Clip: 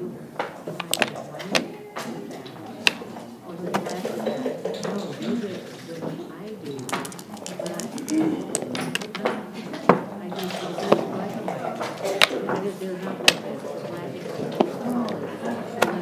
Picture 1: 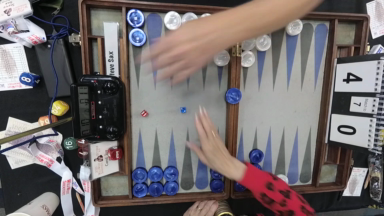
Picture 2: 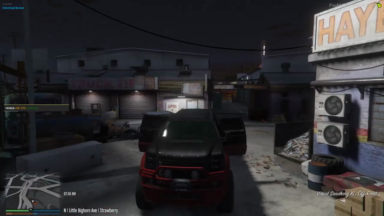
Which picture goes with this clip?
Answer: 1